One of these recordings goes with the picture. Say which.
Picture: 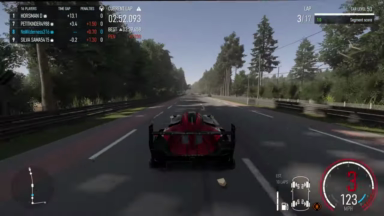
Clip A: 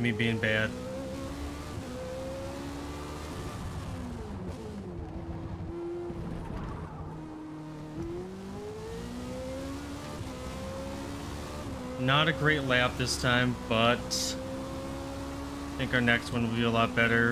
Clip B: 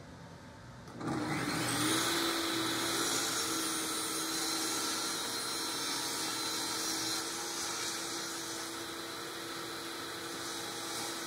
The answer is A